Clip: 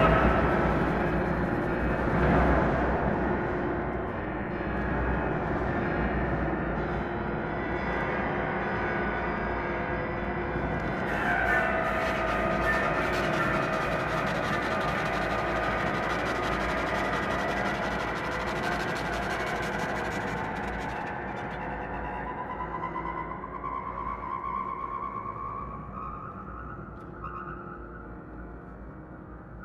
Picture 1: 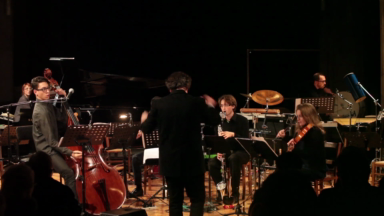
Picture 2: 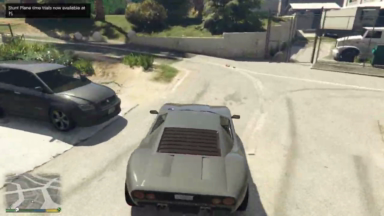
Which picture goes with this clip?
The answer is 1